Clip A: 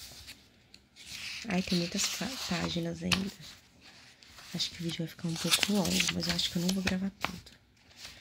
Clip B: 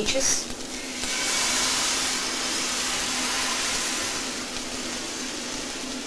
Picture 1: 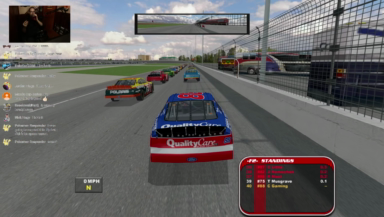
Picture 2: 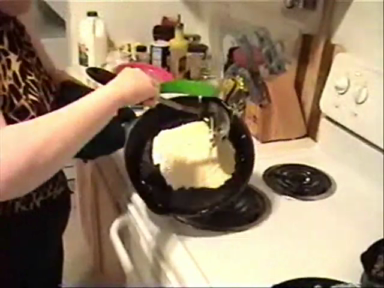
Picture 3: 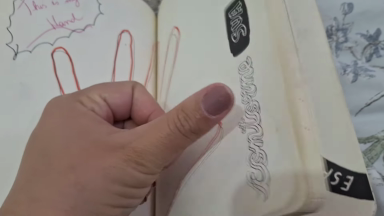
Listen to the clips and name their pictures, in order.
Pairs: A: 3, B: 2